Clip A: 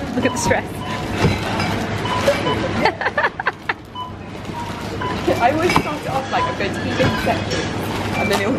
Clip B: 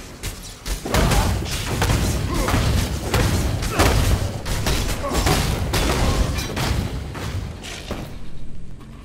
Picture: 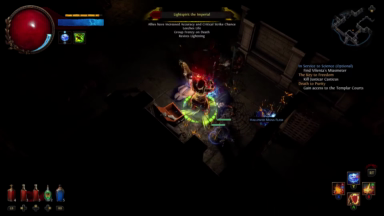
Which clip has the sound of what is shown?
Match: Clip B